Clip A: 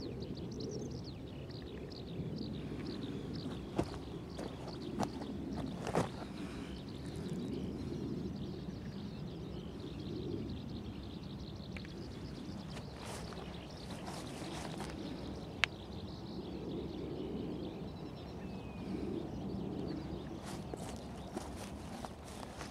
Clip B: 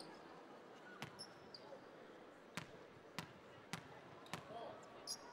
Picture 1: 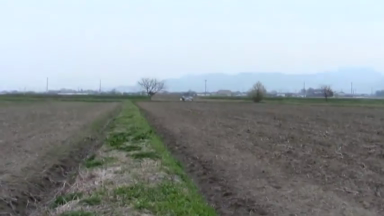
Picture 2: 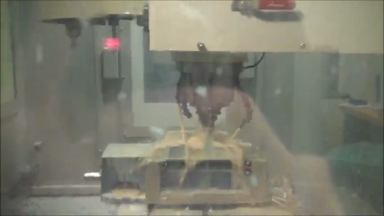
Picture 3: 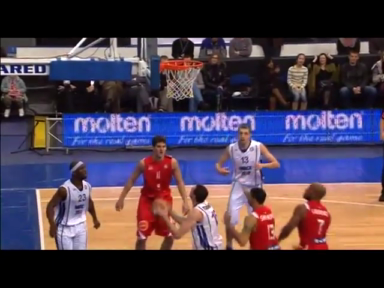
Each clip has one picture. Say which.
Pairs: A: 1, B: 3